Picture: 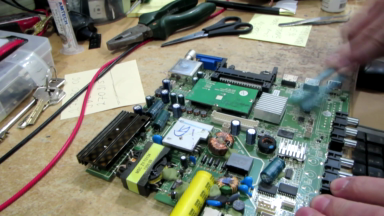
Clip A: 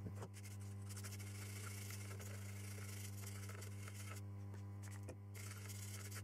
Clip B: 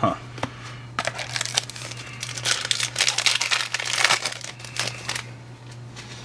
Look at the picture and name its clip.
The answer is A